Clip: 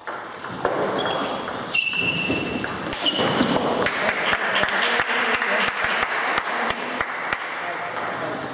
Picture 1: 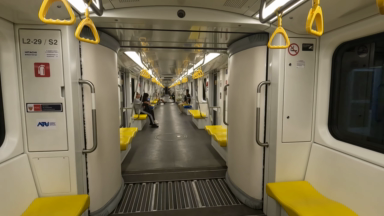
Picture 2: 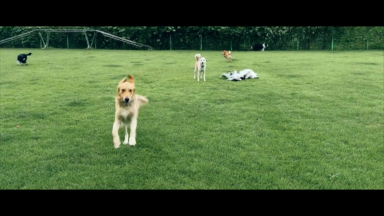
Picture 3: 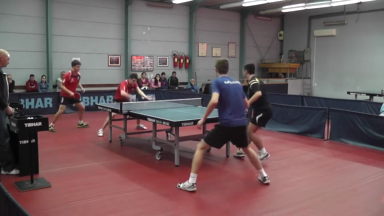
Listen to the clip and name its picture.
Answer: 3